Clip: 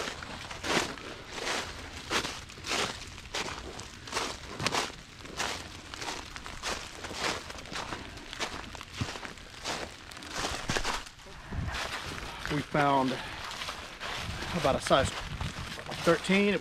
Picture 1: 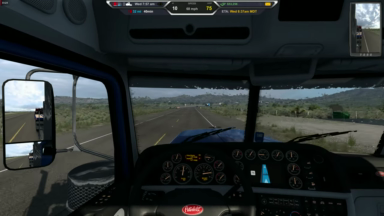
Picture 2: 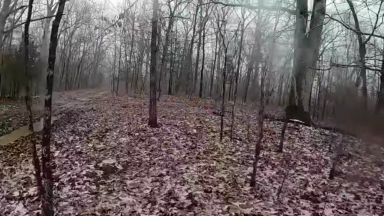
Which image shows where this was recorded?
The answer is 2